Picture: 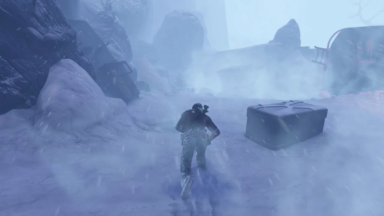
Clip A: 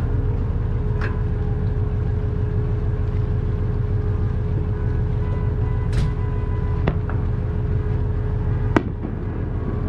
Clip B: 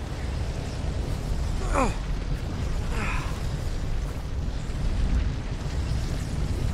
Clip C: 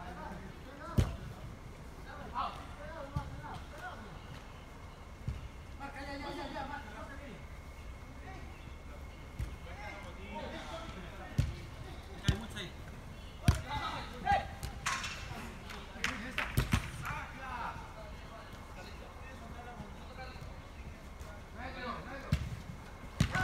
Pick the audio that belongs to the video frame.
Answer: B